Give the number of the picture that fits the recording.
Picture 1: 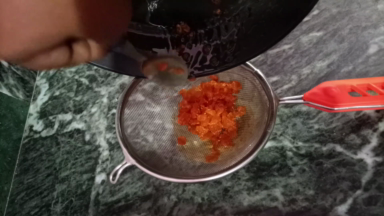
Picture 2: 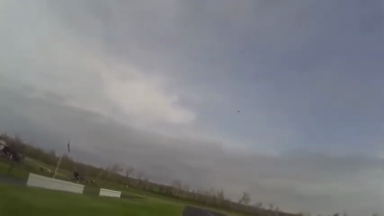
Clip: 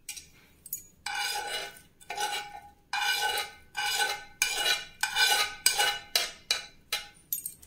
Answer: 1